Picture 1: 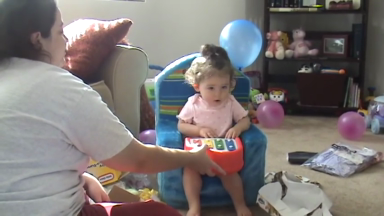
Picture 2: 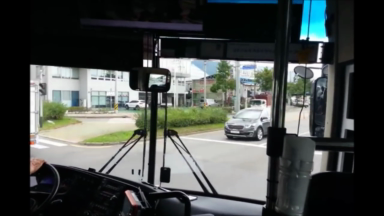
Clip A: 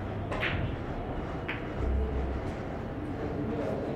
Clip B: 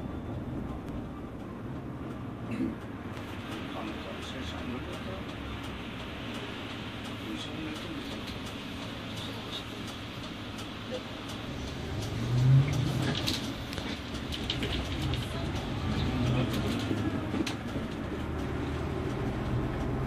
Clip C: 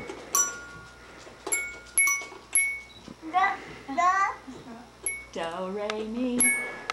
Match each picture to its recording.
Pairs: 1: C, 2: B